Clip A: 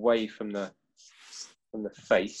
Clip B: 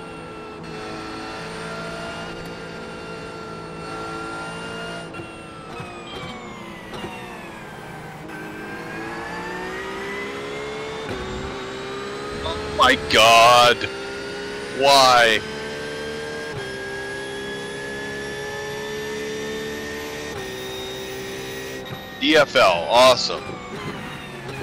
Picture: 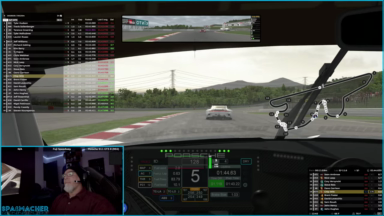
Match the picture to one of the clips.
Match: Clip B